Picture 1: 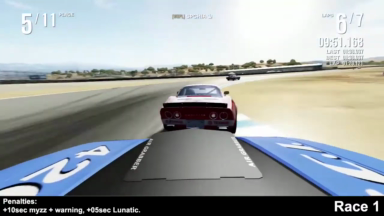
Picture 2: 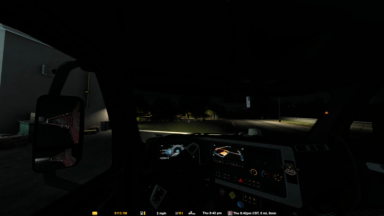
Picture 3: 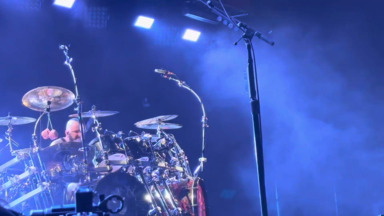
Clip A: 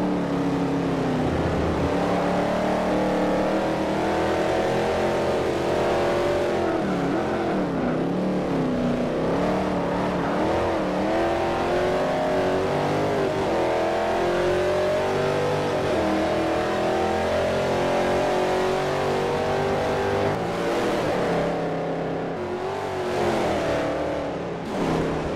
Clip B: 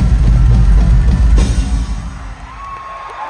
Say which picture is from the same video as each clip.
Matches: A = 1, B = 3